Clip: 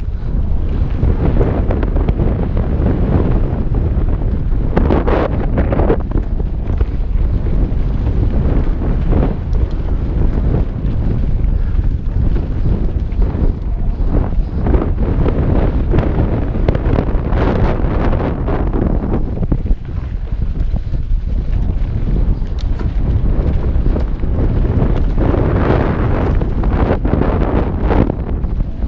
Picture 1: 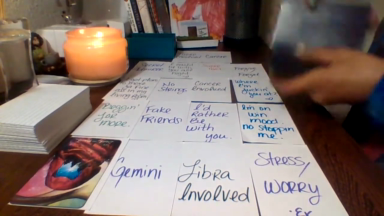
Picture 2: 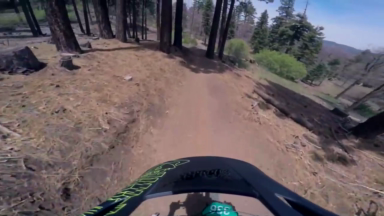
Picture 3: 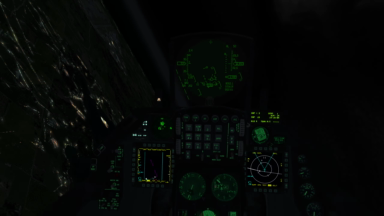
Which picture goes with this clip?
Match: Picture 2